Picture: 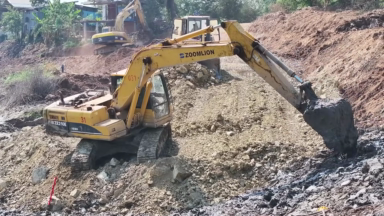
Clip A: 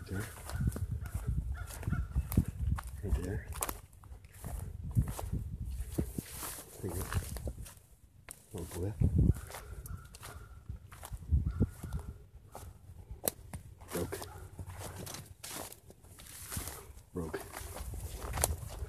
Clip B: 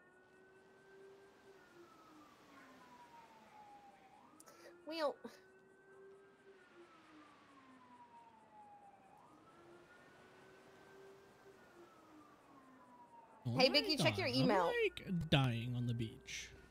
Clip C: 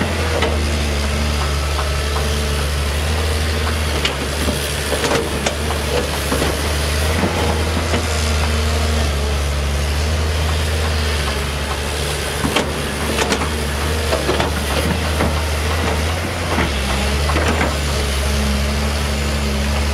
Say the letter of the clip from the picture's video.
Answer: C